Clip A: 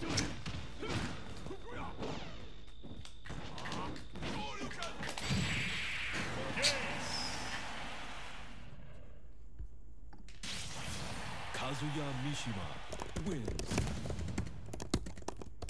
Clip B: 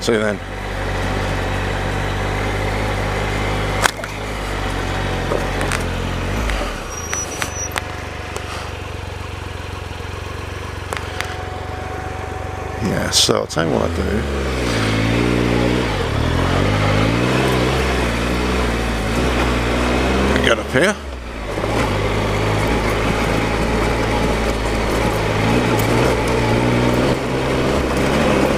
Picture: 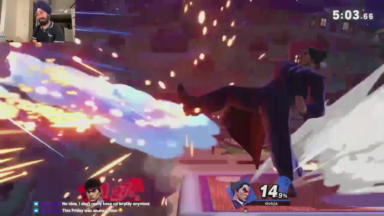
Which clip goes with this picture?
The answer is A